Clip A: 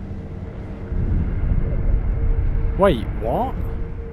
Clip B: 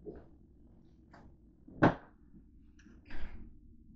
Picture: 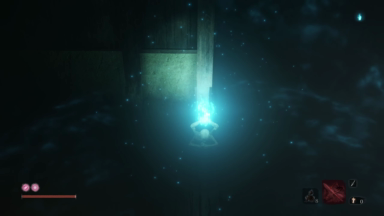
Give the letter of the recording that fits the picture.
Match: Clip A